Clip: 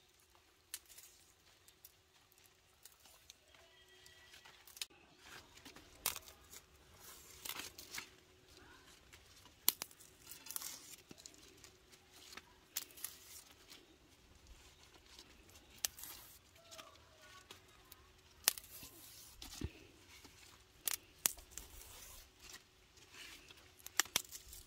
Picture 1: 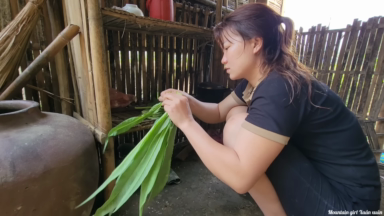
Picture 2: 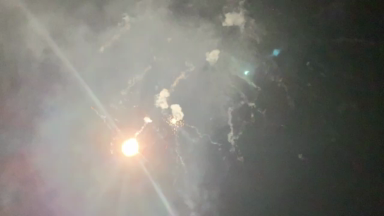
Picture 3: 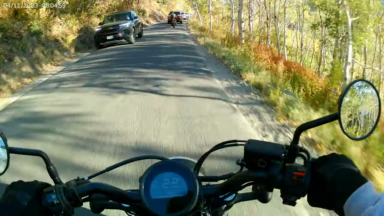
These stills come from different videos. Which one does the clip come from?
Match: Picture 1